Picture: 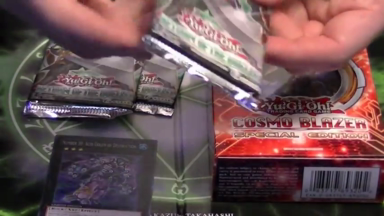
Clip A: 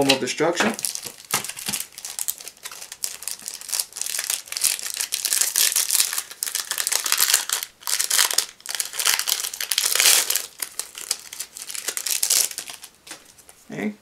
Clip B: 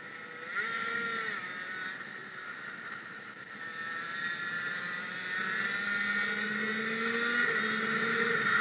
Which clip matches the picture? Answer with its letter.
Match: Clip A